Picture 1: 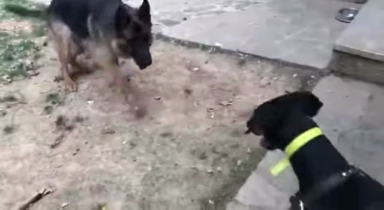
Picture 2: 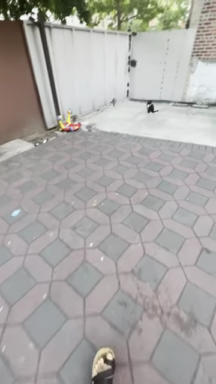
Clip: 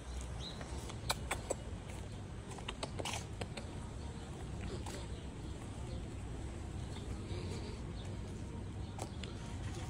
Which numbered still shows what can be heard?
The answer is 2